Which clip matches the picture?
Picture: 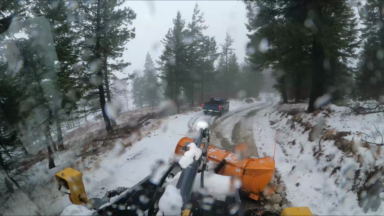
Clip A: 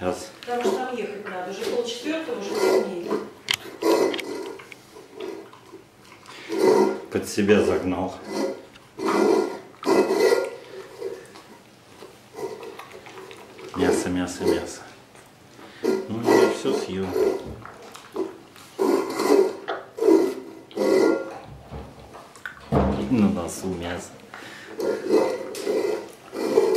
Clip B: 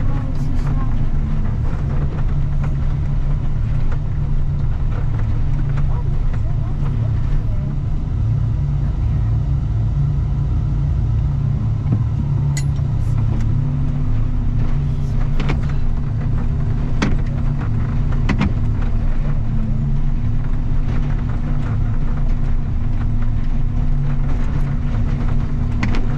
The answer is B